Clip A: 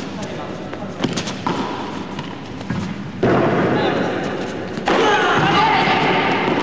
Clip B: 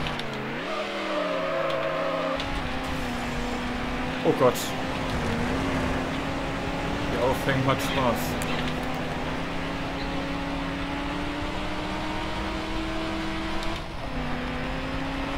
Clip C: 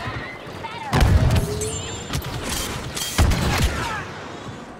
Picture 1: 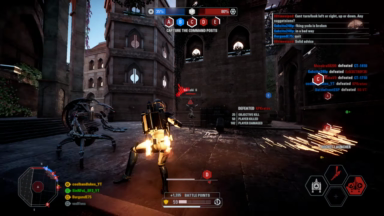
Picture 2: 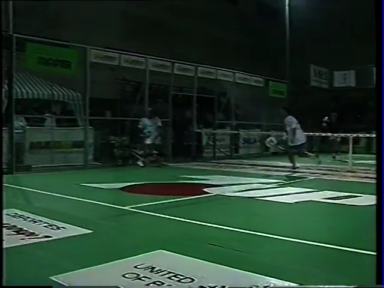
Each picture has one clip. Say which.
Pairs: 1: C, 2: A